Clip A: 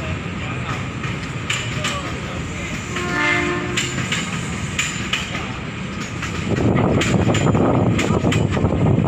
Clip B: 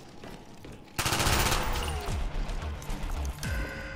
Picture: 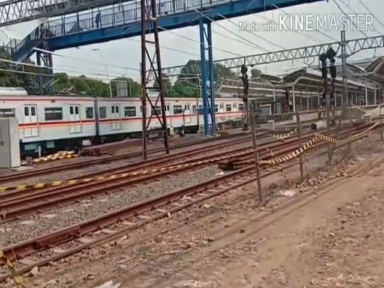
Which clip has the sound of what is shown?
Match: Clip A